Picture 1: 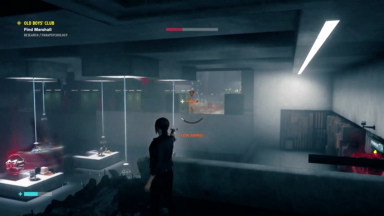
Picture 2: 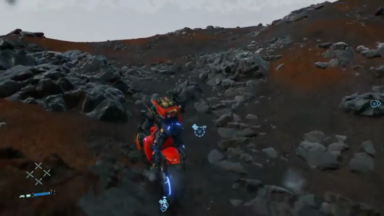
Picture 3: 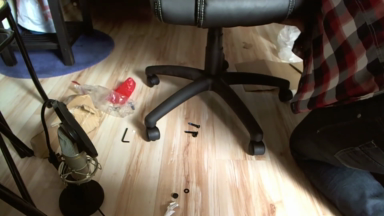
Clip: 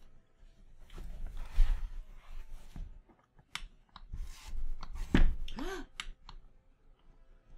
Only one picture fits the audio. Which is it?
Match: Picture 3